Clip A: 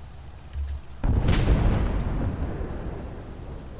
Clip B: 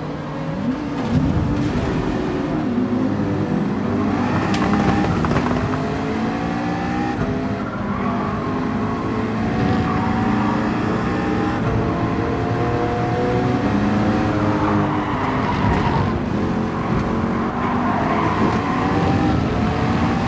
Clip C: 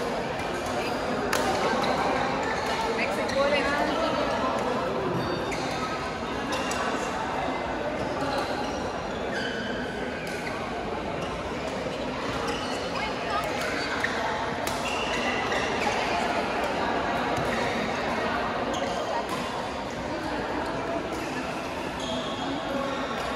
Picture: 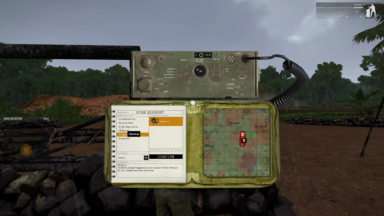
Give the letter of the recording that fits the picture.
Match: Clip A